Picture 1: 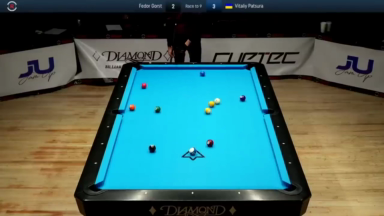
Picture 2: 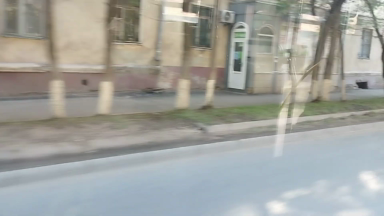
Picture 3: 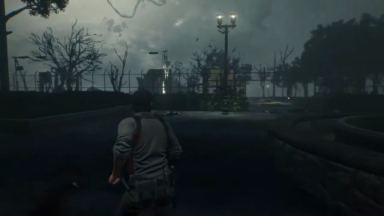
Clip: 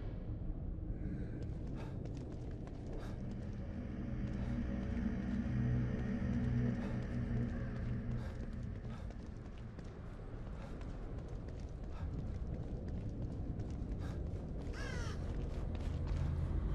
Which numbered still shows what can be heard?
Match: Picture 3